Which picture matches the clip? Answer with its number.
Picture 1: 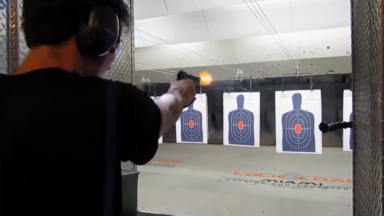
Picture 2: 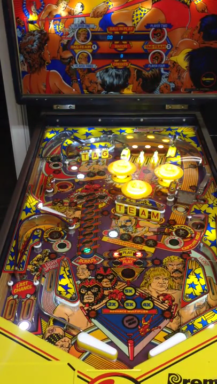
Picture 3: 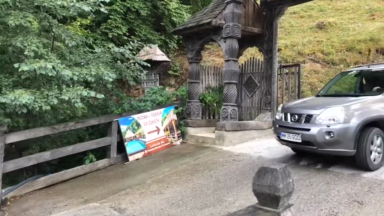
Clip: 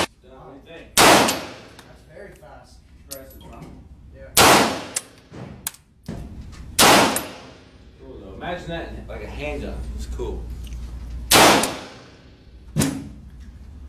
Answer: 1